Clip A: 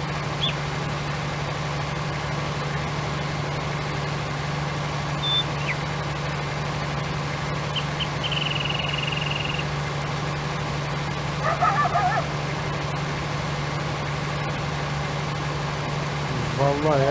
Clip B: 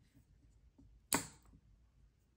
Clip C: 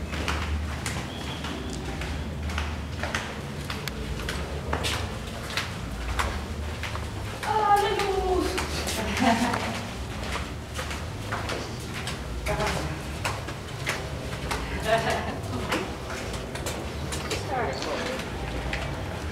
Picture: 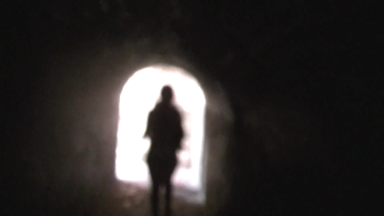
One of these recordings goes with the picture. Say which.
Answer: C